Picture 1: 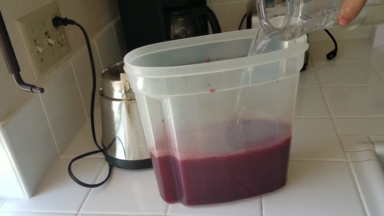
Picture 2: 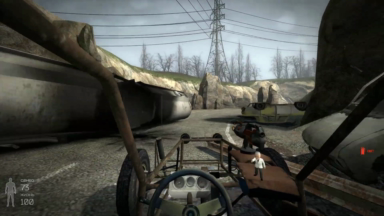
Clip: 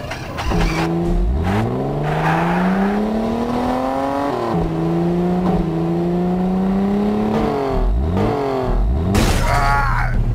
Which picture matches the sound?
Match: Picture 2